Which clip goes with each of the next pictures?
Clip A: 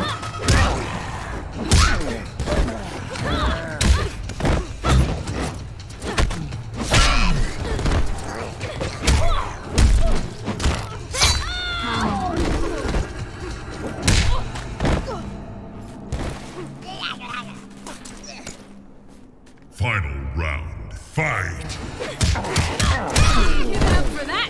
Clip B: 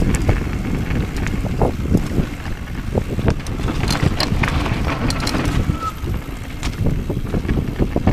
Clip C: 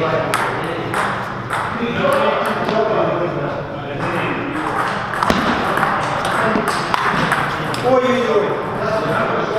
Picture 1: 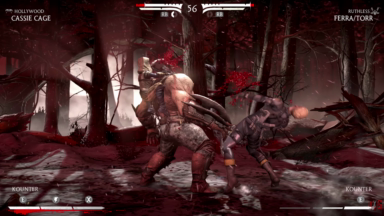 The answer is A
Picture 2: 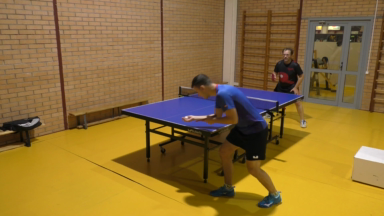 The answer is C